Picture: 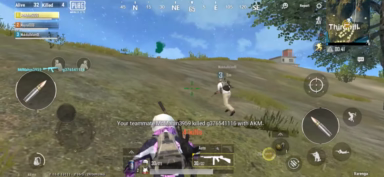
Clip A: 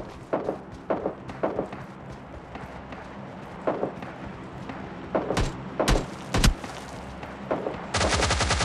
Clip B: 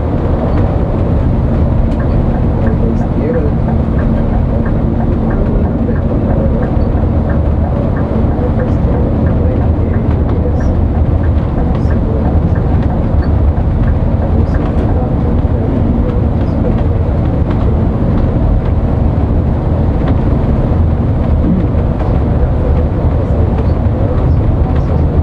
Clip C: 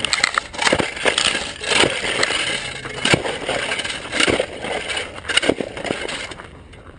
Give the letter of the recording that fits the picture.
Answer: A